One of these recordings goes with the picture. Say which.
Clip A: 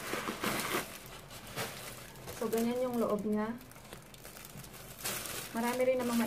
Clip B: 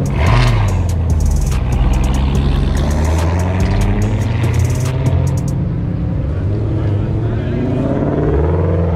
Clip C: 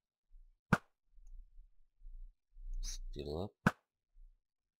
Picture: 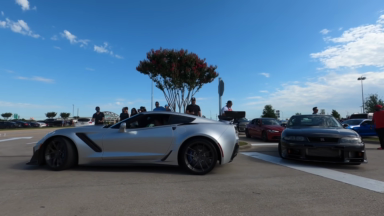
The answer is B